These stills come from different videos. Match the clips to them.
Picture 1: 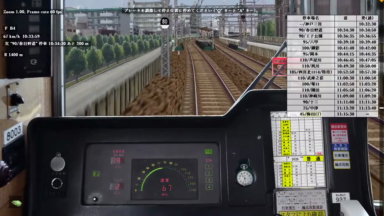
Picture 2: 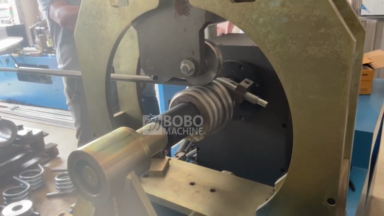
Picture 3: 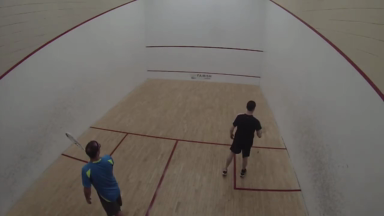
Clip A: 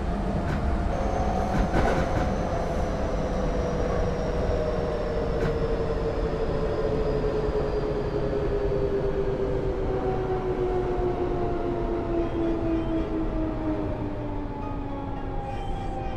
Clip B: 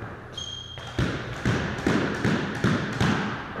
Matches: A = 1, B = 3